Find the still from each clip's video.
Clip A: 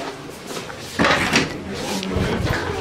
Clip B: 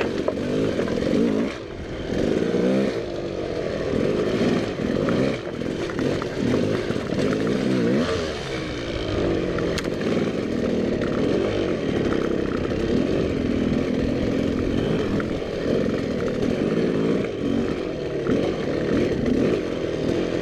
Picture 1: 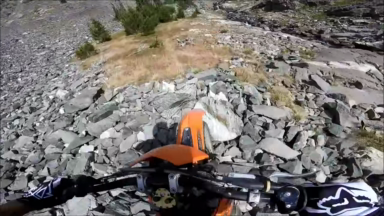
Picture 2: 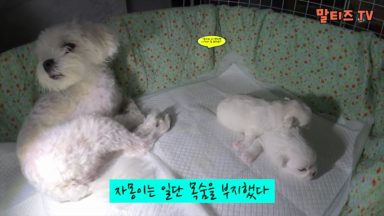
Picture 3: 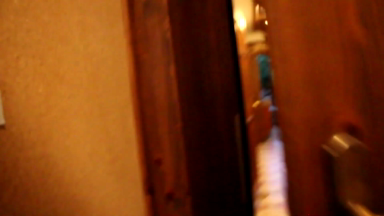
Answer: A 3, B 1